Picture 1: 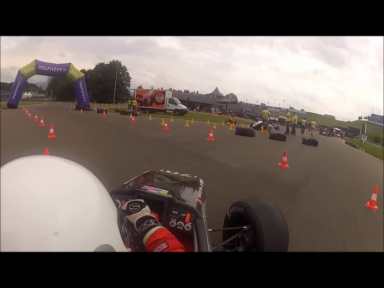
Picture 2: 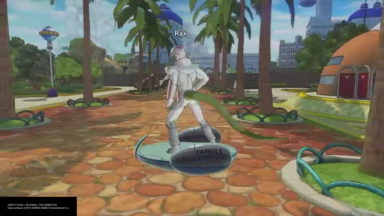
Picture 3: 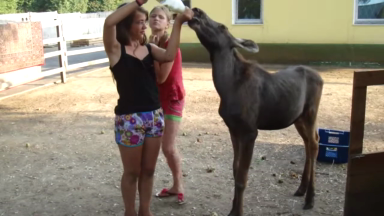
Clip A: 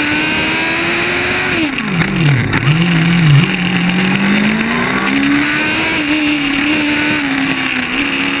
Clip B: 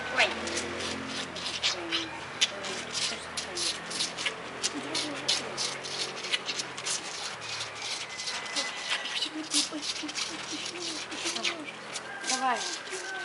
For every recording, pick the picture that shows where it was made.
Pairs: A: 1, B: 3